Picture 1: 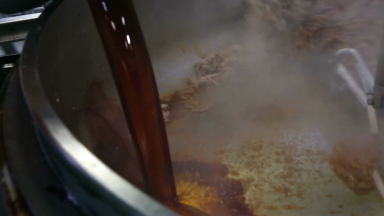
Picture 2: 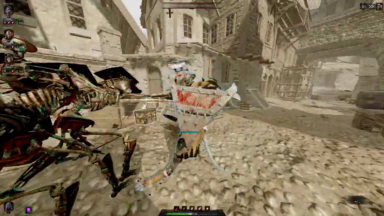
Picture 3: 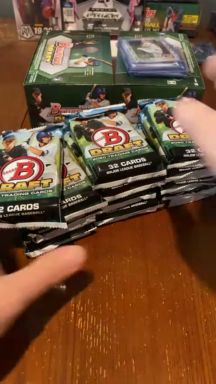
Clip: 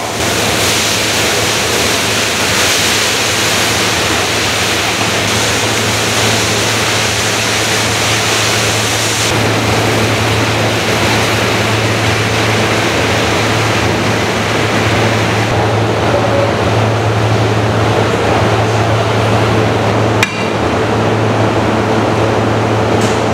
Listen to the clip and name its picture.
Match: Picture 1